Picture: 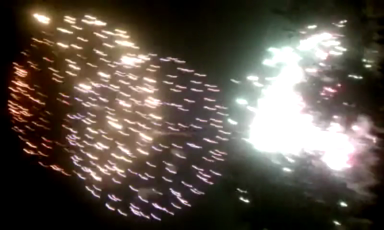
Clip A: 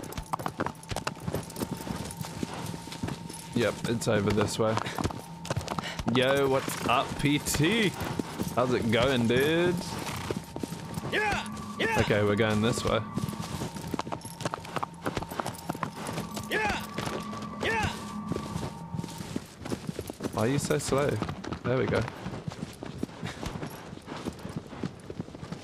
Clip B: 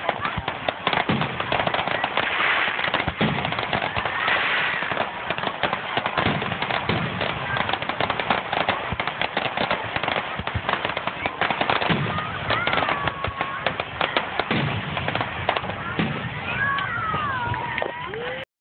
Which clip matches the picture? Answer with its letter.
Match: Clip B